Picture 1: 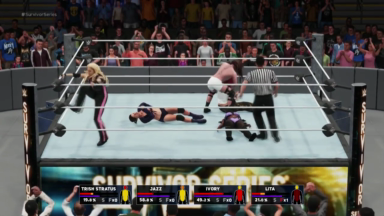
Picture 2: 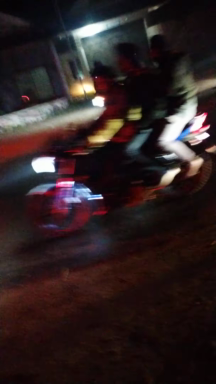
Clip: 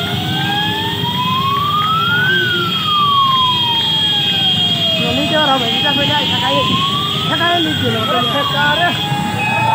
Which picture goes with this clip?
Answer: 2